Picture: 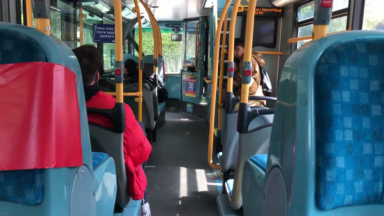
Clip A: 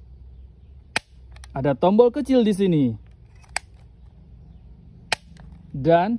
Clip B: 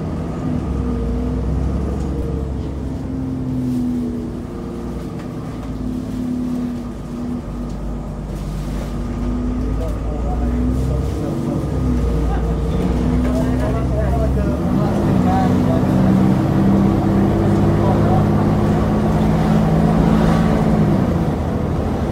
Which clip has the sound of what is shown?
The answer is B